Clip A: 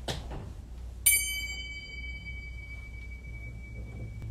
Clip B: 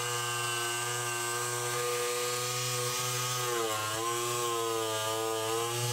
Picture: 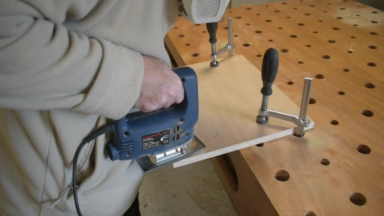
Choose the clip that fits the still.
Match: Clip B